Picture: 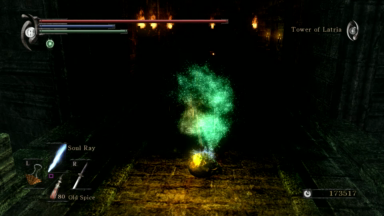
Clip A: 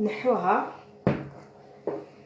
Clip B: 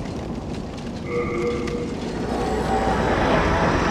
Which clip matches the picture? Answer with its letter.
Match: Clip B